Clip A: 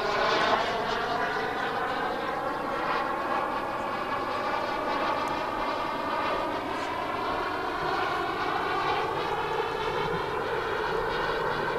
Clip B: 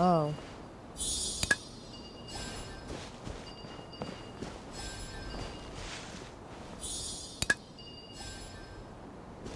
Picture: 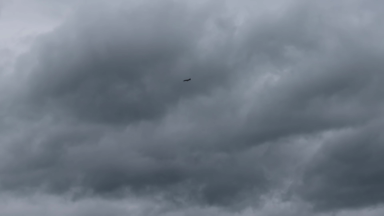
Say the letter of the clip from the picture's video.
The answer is A